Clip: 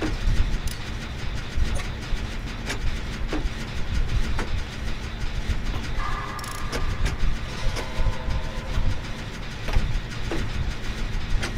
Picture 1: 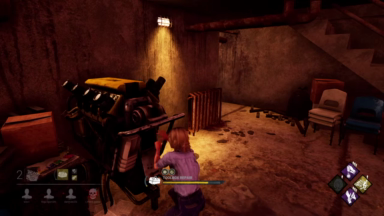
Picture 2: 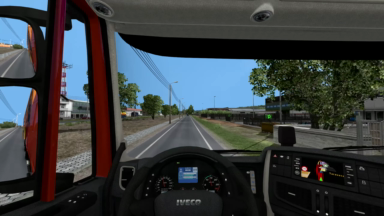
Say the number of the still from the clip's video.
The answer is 1